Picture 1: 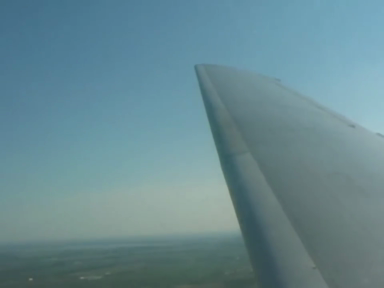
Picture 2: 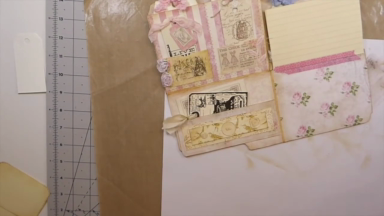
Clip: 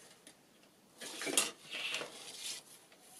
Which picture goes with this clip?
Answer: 2